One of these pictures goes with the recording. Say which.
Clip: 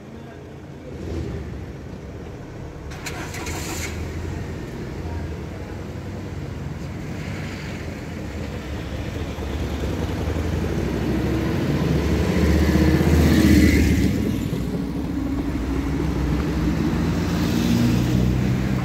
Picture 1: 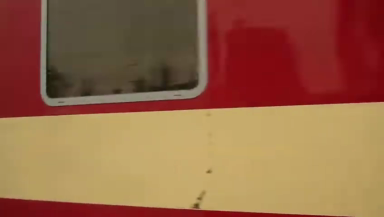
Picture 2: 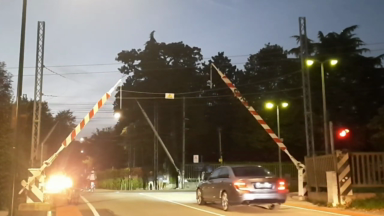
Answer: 2